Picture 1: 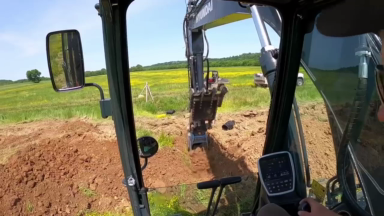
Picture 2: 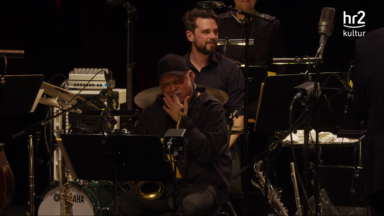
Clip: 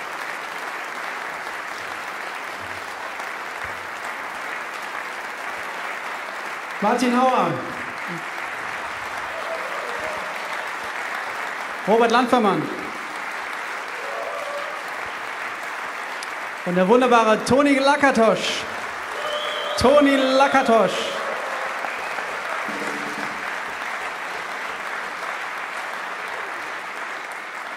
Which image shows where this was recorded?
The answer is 2